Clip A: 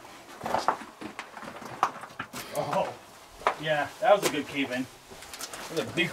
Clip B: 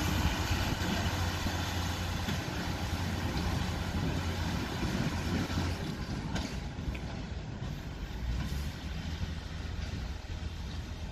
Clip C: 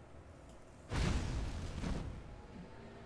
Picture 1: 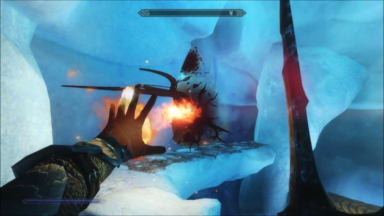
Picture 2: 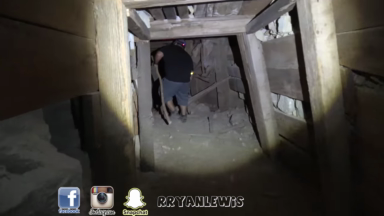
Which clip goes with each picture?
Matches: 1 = C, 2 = A